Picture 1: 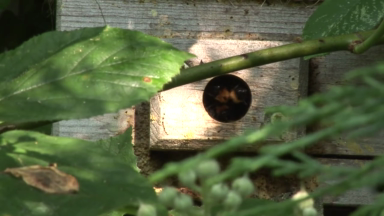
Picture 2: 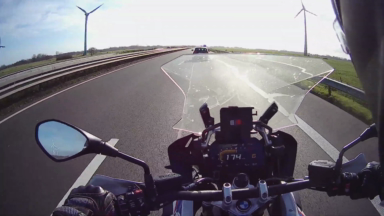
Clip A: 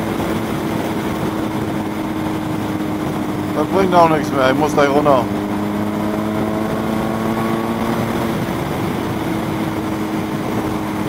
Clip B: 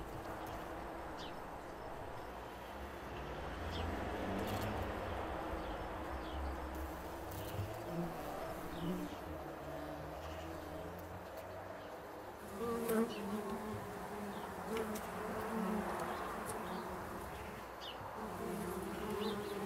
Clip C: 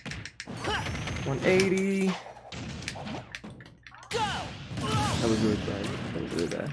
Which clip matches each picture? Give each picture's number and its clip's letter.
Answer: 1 B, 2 A